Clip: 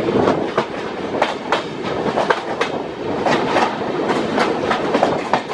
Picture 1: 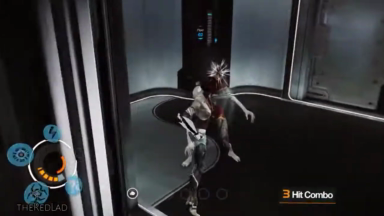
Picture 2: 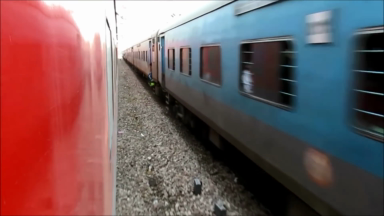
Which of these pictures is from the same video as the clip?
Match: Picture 2